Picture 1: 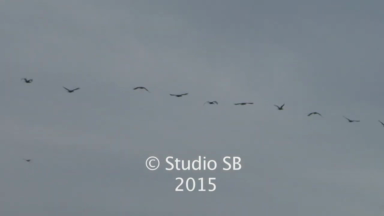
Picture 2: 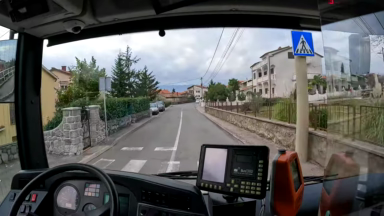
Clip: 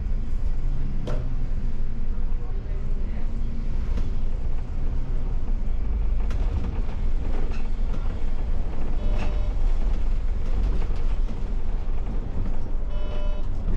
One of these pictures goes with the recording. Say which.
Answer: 2